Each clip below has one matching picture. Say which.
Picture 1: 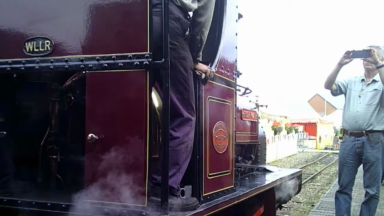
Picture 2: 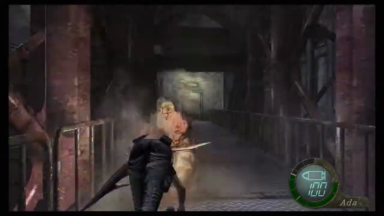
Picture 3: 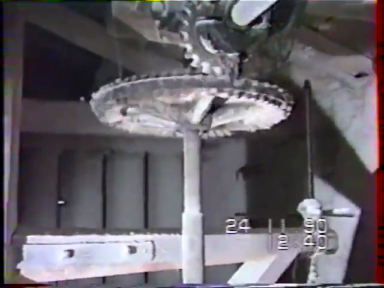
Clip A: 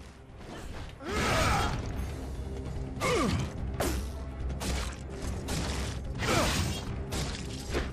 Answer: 2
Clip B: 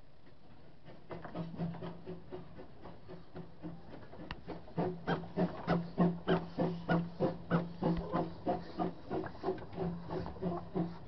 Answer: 1